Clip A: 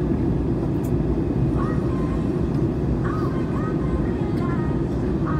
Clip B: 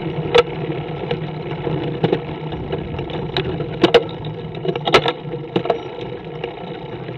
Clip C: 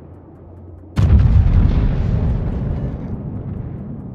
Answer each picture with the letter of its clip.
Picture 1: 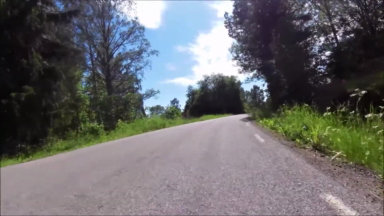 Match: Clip B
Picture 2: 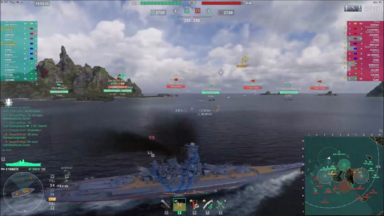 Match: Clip C